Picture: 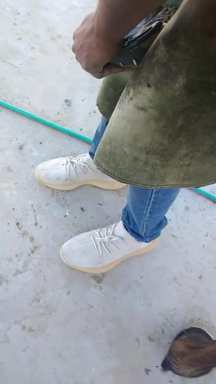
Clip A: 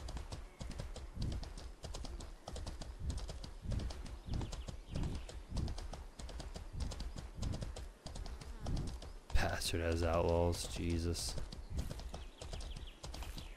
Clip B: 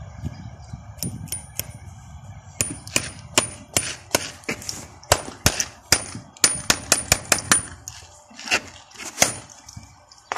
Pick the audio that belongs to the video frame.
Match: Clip B